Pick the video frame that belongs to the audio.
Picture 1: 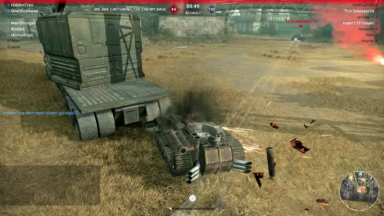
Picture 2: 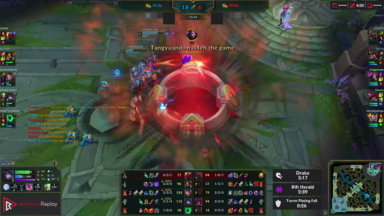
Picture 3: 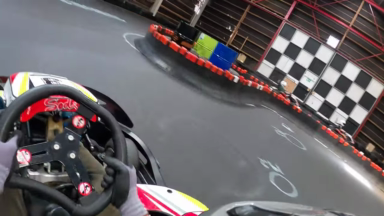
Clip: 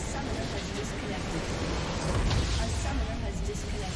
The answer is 2